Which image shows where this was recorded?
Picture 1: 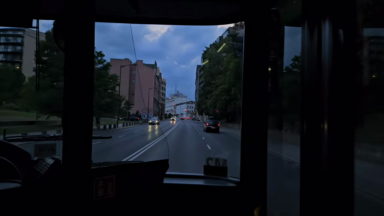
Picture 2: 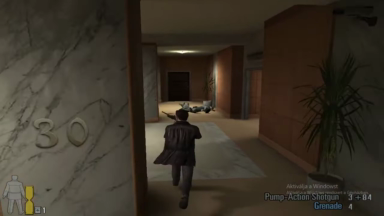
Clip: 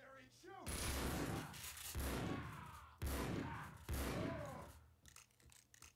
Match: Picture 2